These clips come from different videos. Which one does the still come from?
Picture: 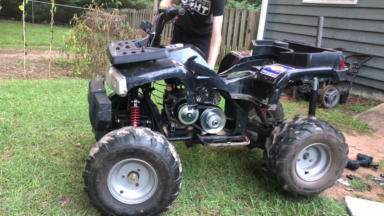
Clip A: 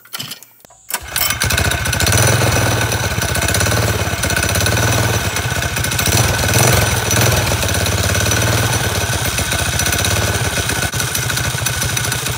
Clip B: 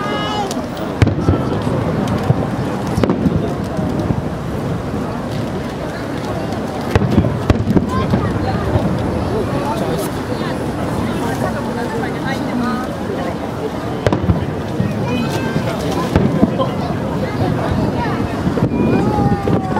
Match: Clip A